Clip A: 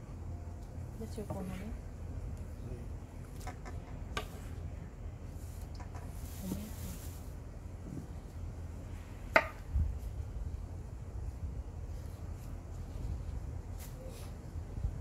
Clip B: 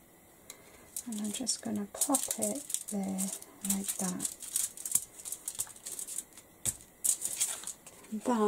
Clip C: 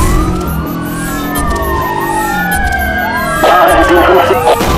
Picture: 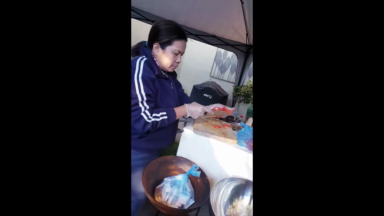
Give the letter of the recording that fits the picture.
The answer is A